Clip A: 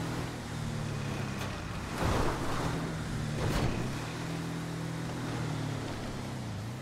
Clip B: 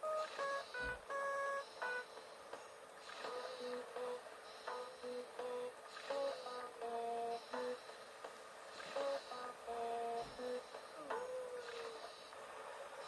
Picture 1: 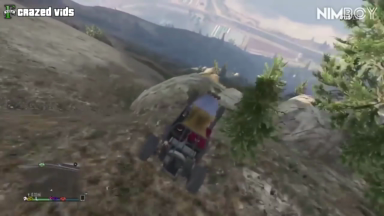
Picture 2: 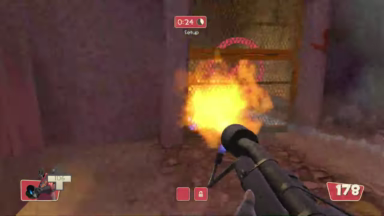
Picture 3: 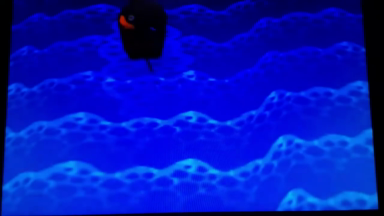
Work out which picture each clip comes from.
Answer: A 1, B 3